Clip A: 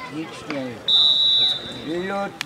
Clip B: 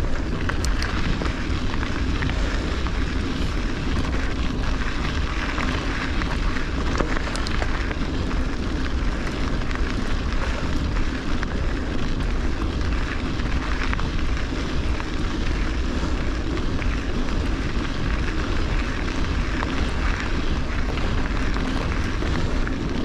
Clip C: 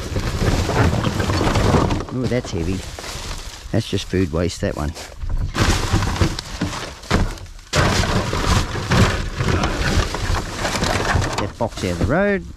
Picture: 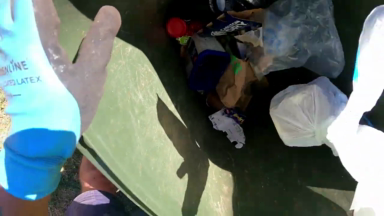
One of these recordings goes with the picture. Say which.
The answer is C